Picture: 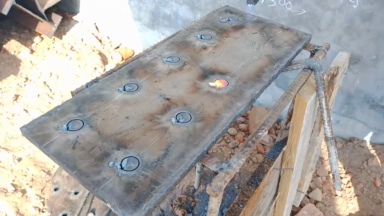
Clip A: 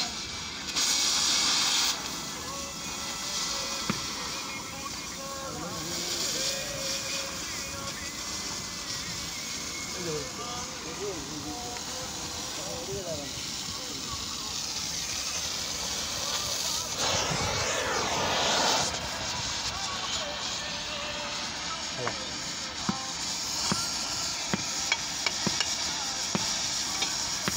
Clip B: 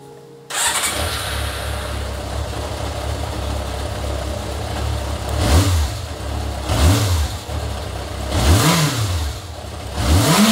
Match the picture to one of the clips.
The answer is A